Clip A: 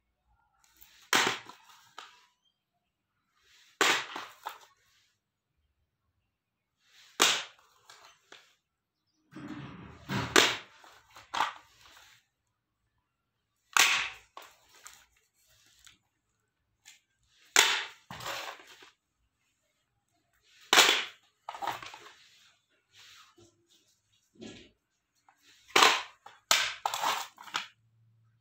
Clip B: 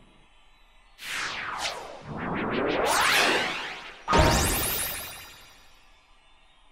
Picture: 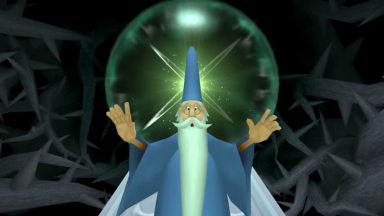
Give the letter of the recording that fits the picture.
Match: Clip B